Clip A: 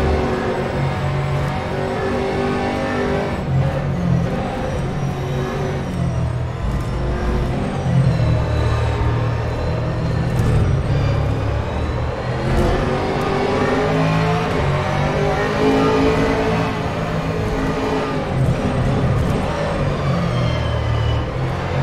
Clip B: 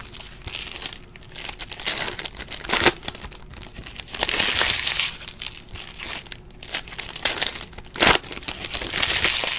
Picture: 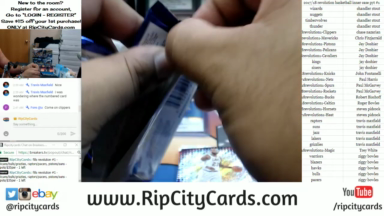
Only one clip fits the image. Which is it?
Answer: B